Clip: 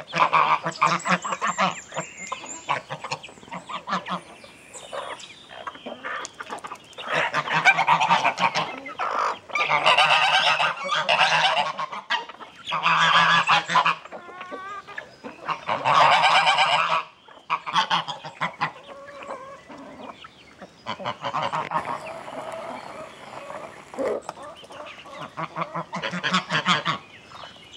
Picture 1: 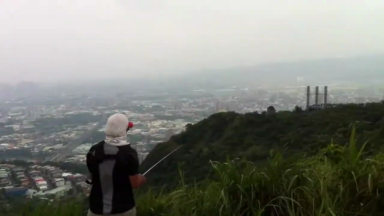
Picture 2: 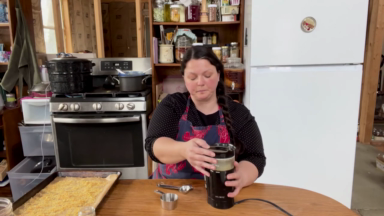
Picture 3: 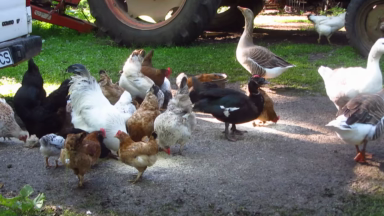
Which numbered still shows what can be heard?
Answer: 3